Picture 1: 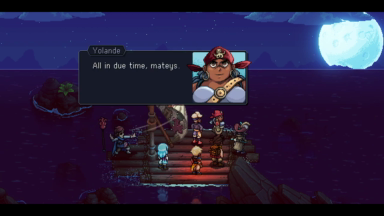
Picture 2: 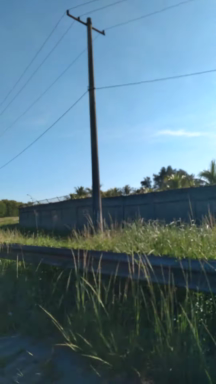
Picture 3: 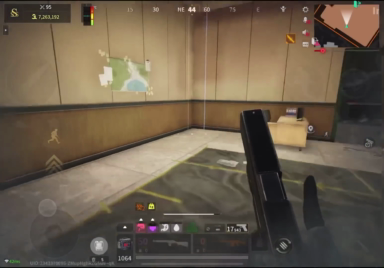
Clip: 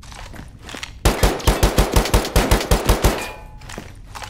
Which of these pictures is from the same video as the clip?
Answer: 3